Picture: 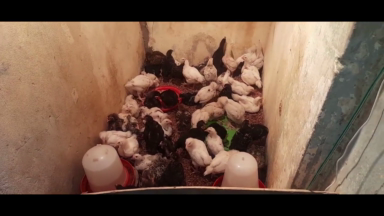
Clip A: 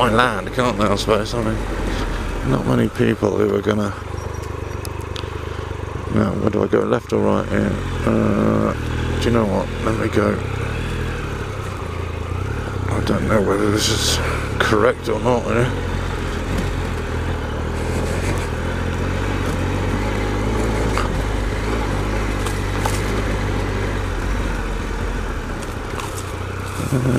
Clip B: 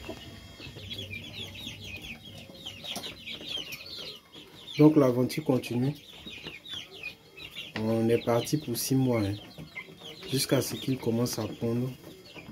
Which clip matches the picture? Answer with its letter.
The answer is B